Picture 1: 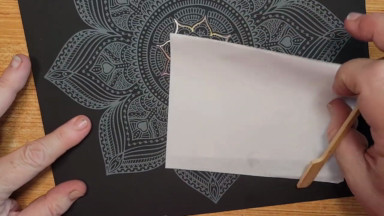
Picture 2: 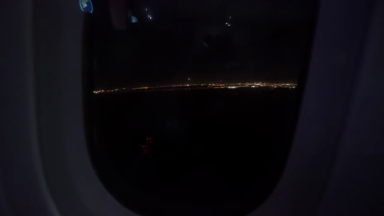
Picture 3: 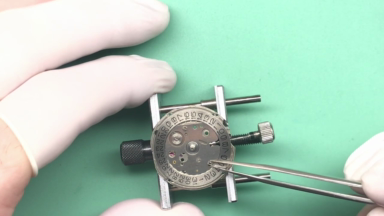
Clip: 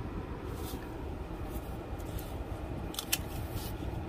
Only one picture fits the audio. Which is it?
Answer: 1